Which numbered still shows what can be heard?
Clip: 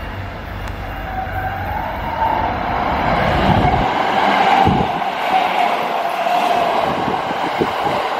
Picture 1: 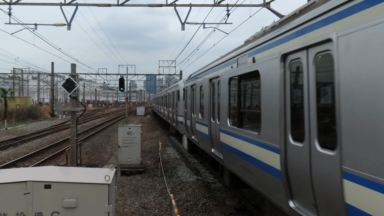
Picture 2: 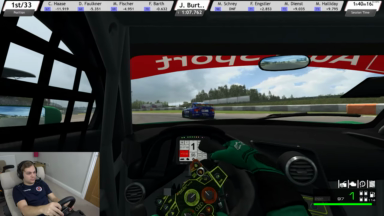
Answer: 1